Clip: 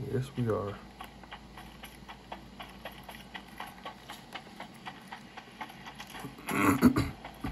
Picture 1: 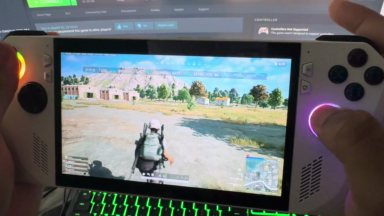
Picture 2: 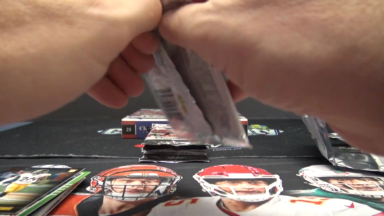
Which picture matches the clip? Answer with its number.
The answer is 1